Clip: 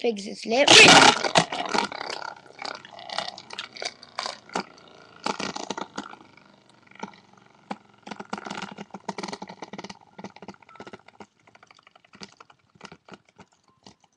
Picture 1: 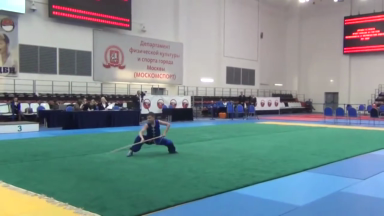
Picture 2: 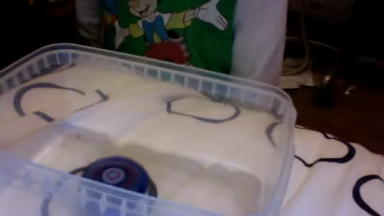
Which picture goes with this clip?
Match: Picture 2